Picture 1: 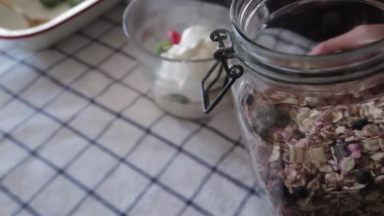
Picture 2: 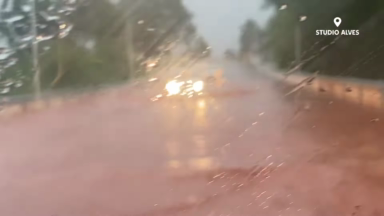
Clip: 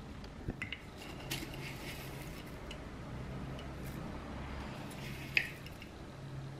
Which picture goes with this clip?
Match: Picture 1